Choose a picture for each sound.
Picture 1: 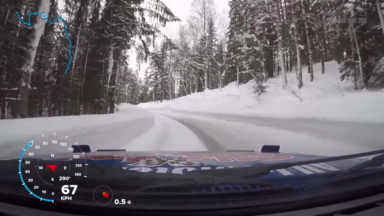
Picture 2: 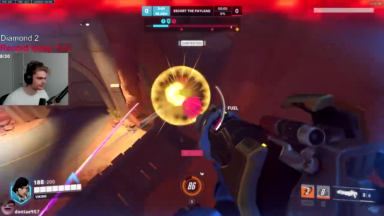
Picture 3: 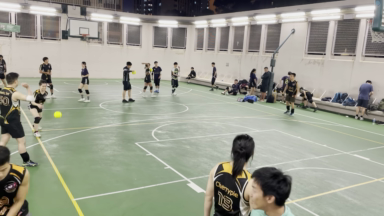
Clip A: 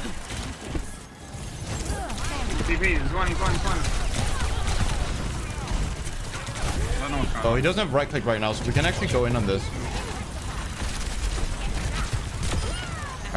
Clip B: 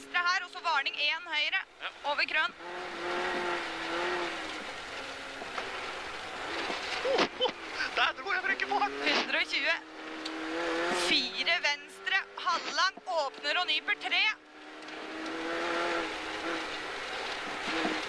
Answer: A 2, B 1